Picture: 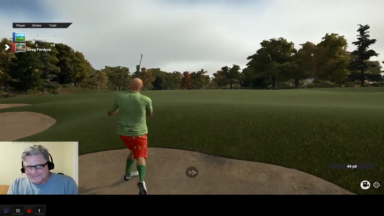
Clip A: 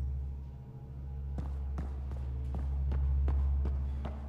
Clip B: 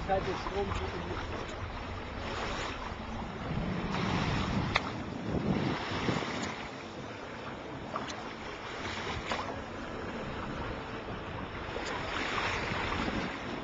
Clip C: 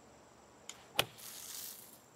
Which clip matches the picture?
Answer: C